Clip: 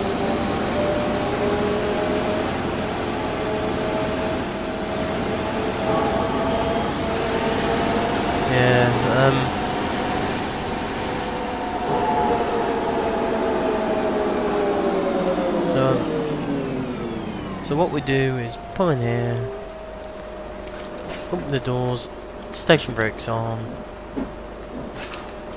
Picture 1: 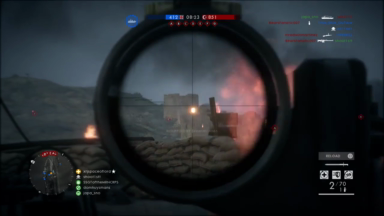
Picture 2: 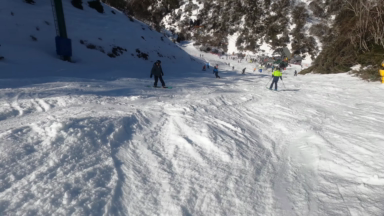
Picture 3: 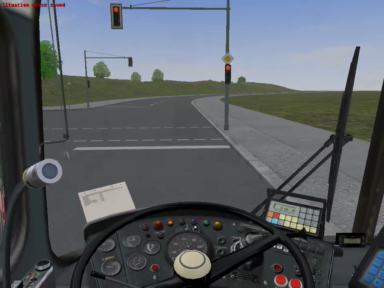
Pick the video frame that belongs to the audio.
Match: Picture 3